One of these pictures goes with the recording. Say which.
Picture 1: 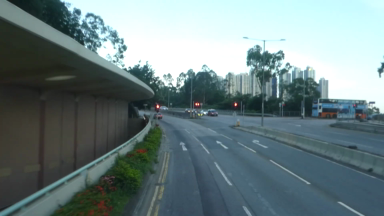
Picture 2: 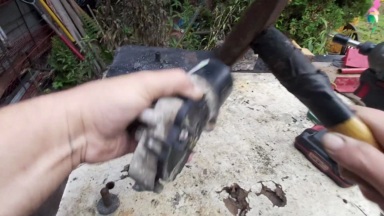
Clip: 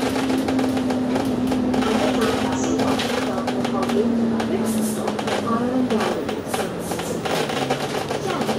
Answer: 1